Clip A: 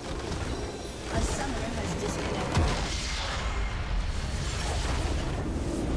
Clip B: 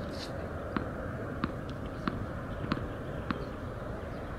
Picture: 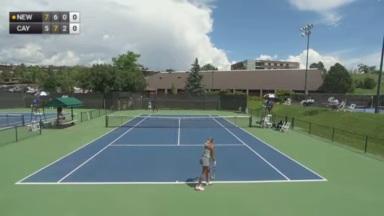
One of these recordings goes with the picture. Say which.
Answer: B